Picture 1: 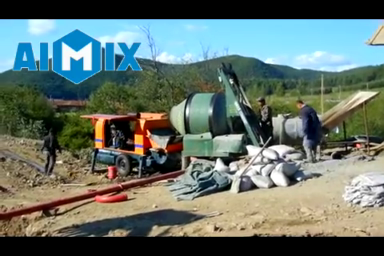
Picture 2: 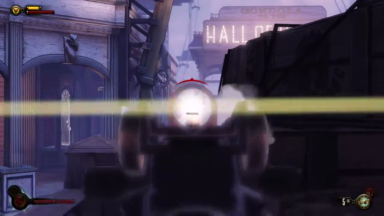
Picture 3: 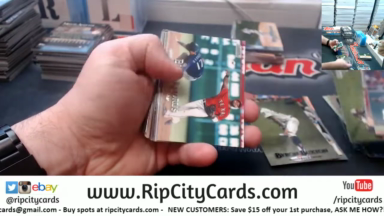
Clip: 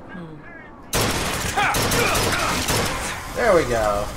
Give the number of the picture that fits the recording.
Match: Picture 2